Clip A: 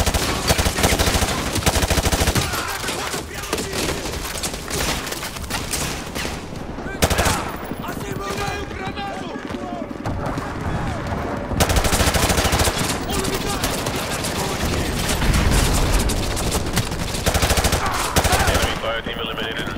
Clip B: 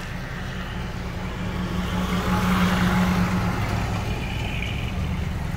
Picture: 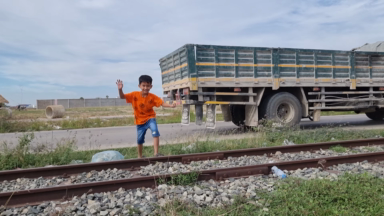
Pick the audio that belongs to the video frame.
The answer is B